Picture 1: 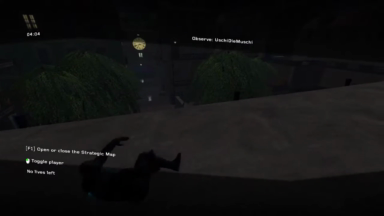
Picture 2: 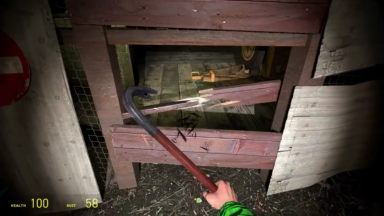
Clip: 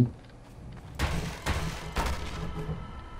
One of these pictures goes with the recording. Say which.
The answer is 2